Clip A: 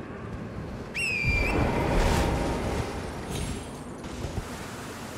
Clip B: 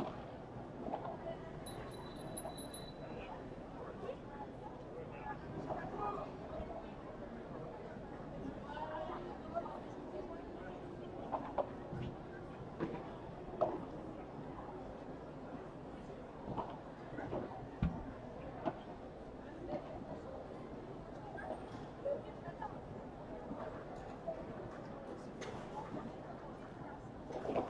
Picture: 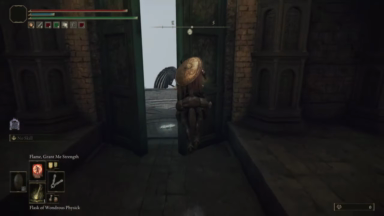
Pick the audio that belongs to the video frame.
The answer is A